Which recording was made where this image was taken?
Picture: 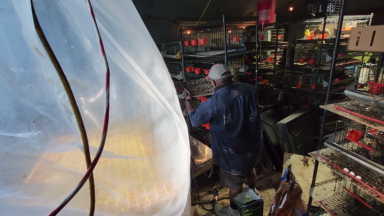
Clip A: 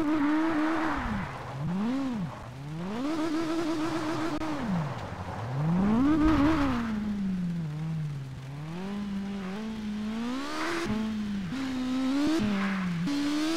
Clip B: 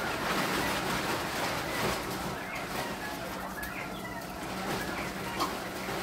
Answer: B